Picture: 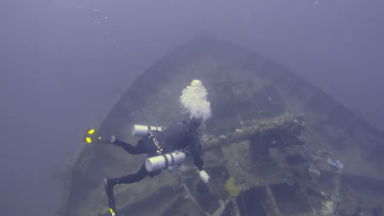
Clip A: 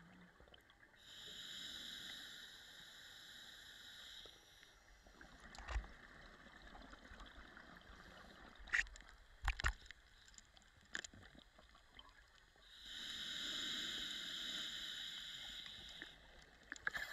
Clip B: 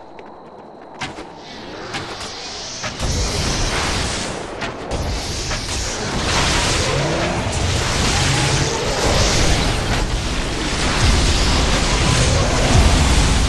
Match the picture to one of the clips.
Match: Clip A